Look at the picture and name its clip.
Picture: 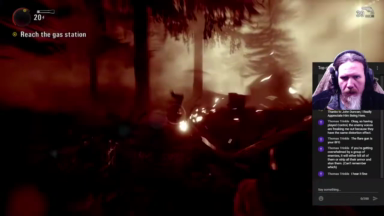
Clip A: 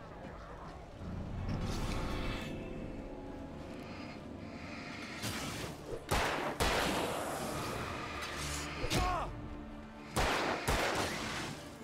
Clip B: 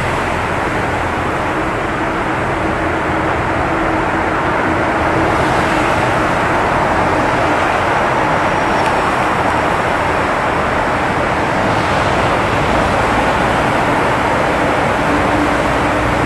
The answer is A